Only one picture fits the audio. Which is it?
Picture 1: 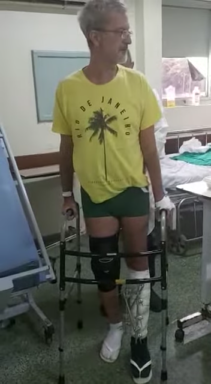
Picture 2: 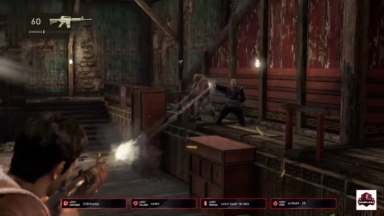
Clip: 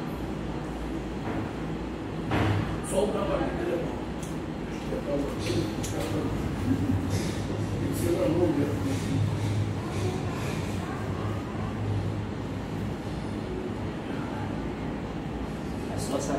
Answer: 1